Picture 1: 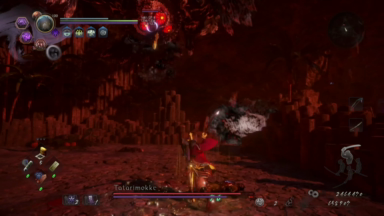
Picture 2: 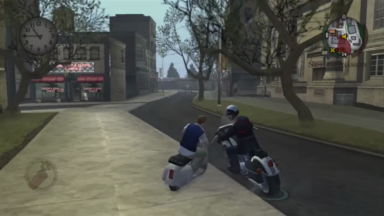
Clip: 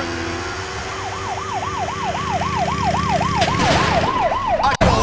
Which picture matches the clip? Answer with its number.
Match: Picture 2